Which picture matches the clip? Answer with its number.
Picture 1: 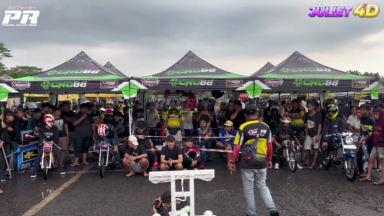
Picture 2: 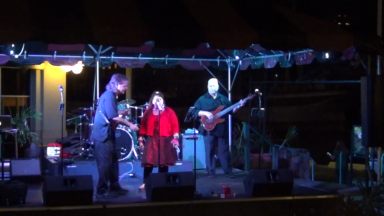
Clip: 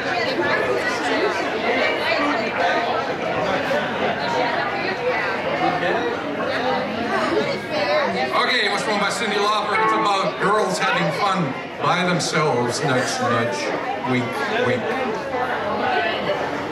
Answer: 2